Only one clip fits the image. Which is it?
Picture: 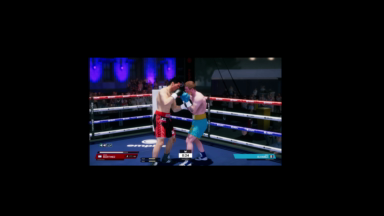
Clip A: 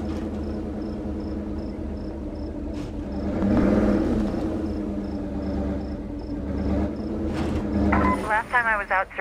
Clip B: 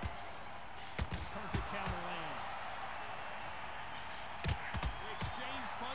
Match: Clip B